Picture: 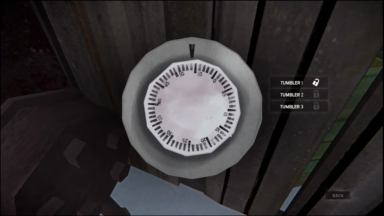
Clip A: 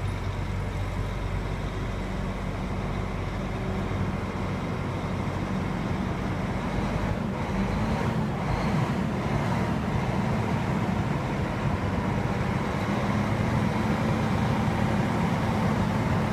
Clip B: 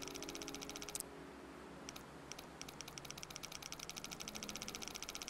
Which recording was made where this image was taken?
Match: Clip B